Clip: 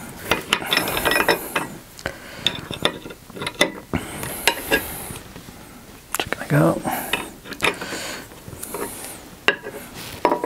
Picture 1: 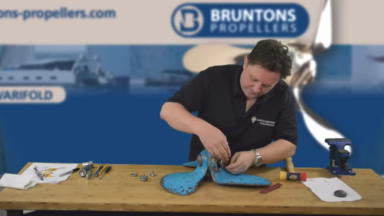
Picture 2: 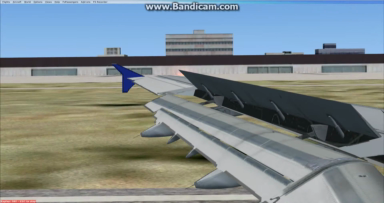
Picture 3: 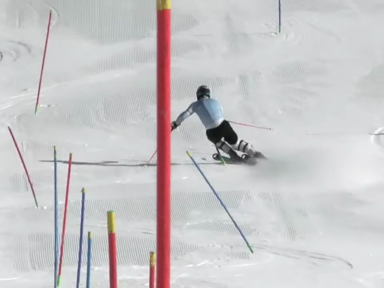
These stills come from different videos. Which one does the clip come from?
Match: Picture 1